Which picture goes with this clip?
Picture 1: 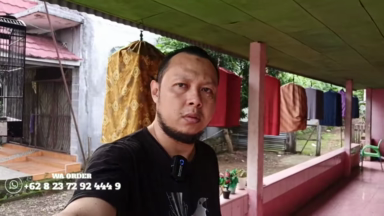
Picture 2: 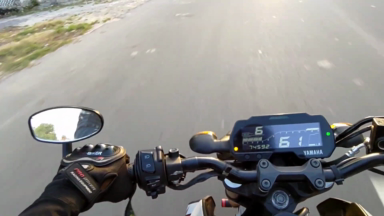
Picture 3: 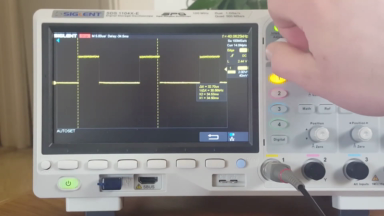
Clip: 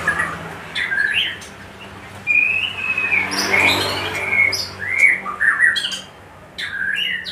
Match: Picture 1